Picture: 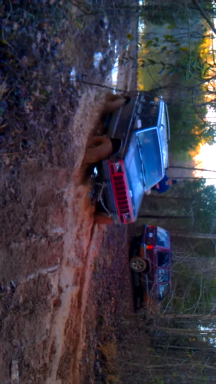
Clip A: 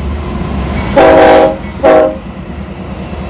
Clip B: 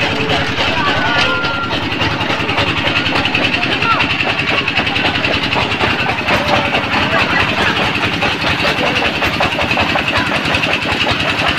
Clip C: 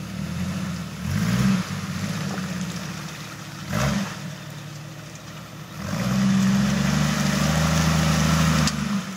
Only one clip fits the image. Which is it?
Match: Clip C